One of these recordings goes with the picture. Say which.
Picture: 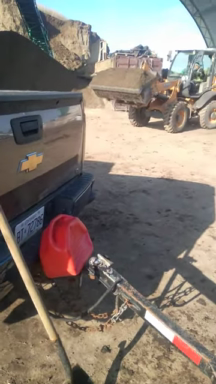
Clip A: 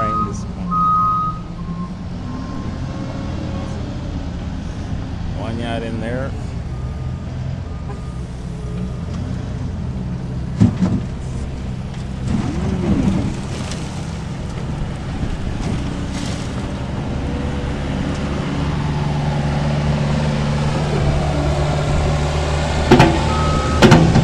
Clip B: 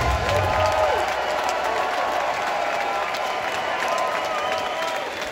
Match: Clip A